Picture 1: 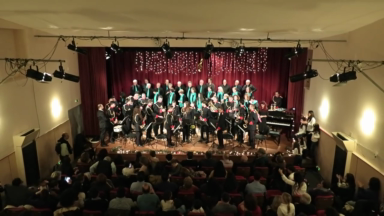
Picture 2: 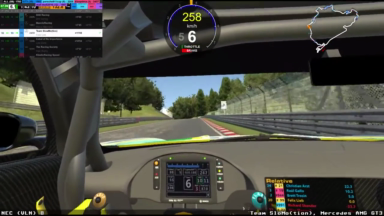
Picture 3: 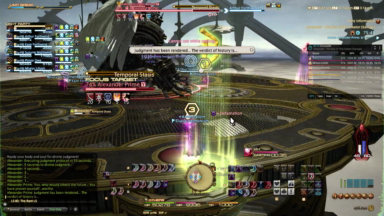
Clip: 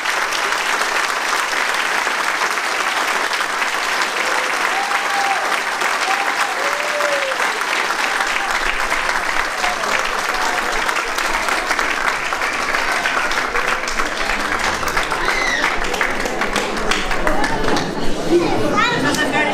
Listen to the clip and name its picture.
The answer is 1